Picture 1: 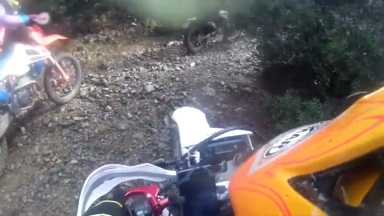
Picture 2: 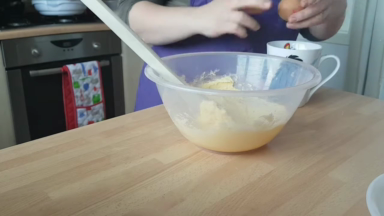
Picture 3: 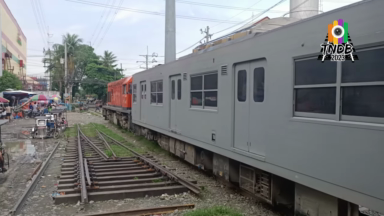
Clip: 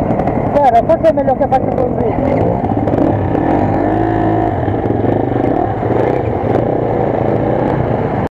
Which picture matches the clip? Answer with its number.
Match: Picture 1